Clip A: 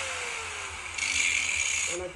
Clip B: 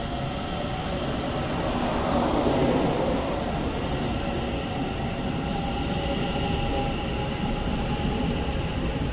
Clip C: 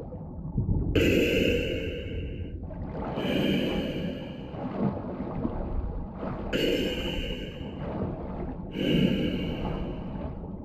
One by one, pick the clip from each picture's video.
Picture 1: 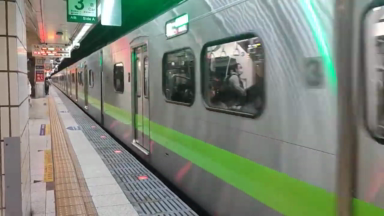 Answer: B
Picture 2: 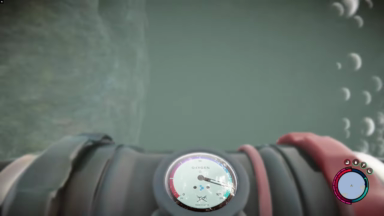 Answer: C